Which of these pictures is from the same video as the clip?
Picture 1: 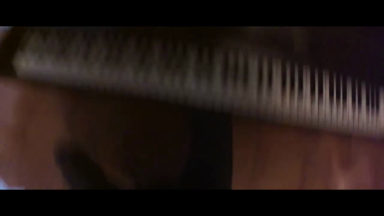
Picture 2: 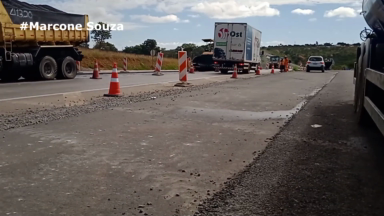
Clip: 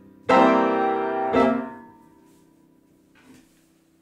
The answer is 1